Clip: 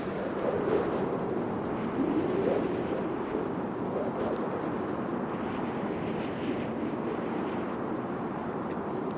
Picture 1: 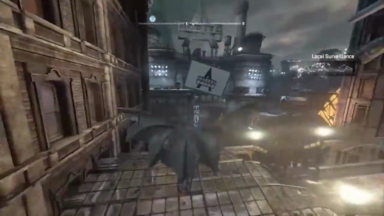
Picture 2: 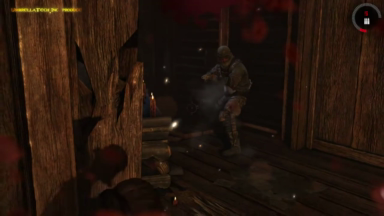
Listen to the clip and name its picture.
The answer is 1